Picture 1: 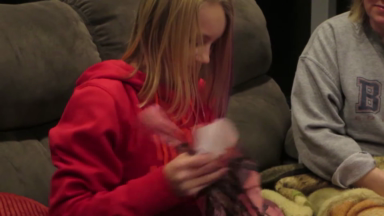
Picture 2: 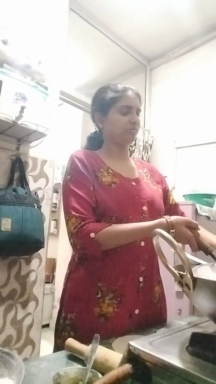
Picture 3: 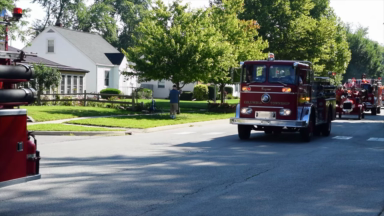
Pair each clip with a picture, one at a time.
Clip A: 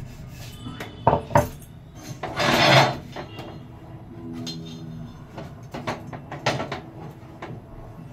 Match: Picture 2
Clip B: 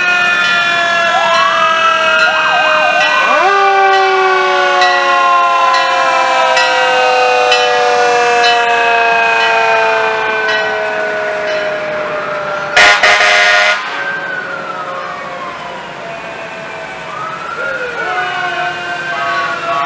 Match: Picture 3